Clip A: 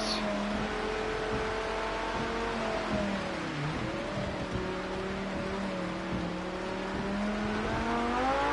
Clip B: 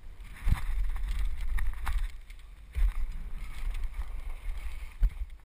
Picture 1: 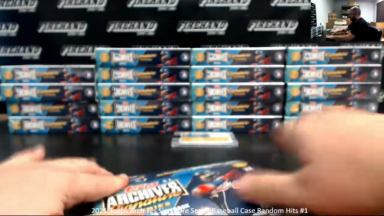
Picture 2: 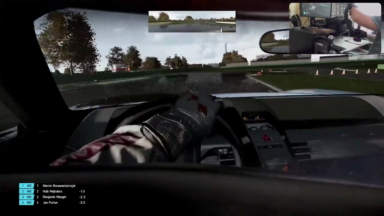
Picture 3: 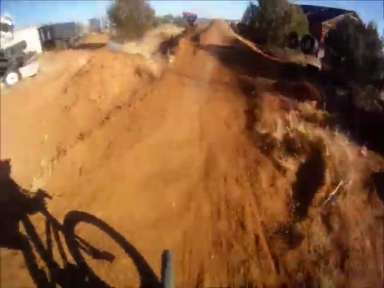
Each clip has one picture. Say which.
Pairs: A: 2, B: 3